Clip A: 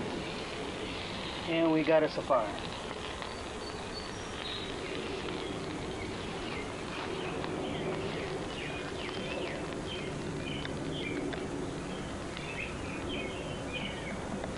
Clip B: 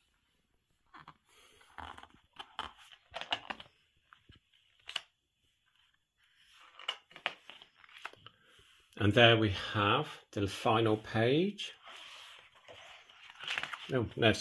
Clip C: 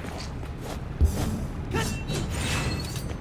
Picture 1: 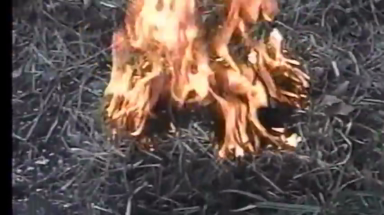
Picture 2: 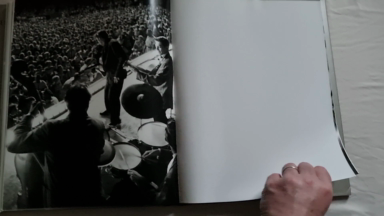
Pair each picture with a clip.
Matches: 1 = A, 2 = B